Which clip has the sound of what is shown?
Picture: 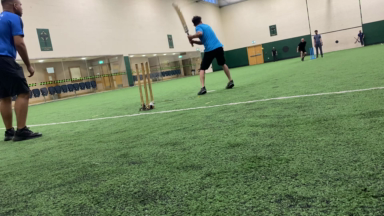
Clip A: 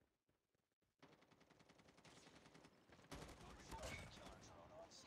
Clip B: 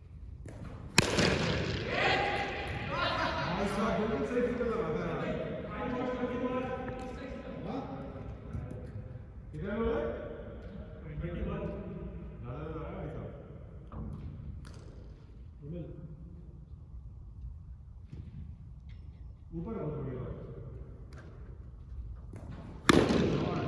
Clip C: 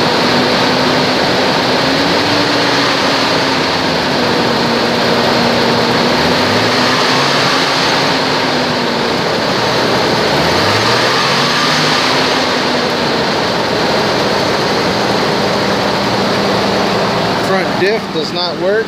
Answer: B